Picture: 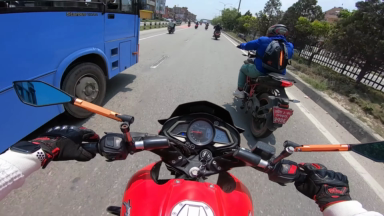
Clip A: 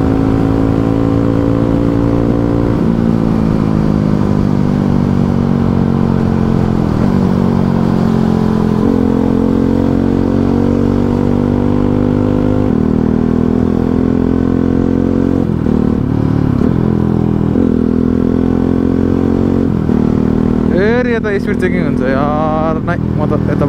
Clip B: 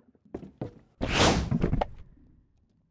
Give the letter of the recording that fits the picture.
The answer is A